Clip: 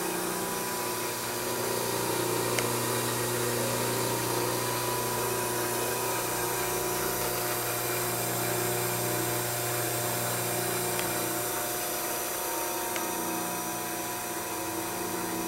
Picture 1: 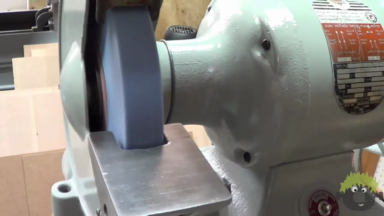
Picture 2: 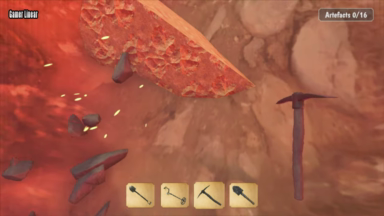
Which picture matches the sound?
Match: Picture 1